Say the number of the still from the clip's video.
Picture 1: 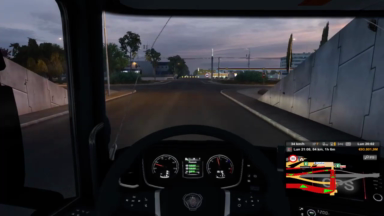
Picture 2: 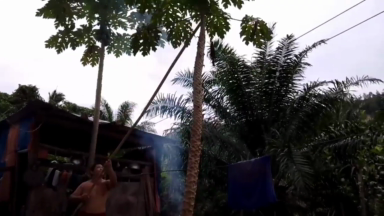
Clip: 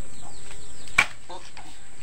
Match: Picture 2